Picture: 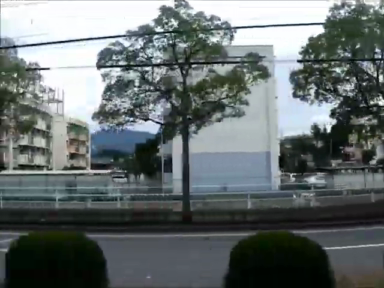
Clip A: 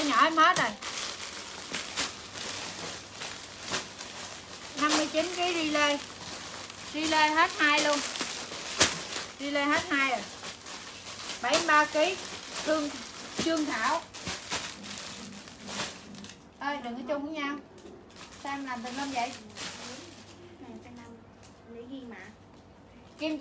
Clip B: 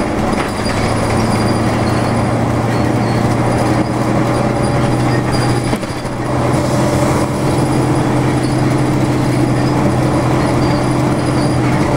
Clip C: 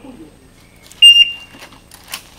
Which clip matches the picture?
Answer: B